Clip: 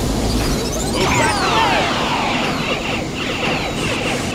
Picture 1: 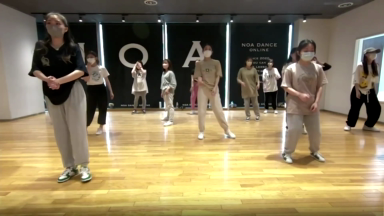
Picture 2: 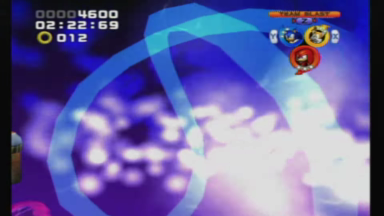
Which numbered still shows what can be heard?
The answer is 2